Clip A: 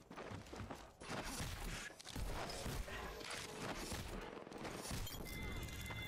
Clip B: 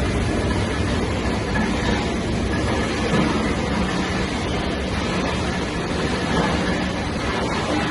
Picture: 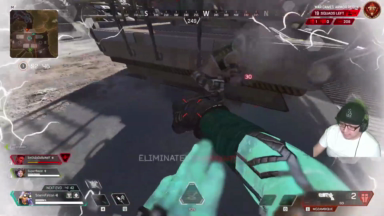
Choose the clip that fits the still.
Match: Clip A